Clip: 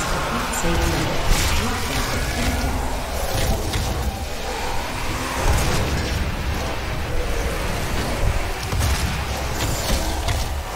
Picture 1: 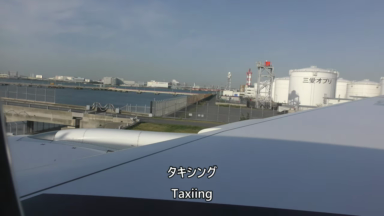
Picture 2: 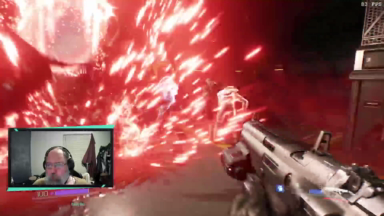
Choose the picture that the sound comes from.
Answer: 2